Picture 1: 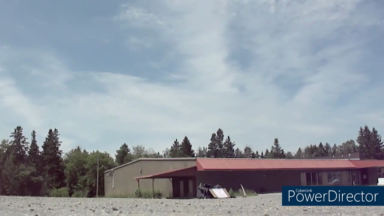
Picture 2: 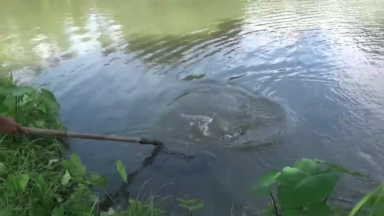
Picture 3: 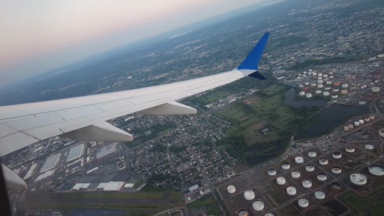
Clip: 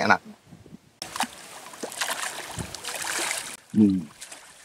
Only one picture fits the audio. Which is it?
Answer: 2